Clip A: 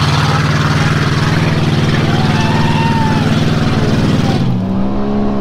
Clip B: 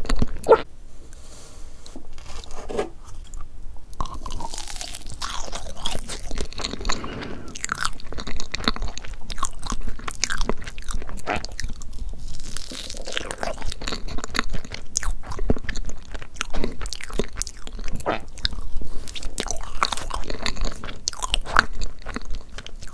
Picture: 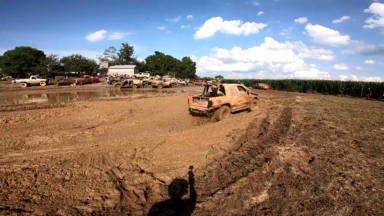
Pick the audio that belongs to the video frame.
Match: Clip A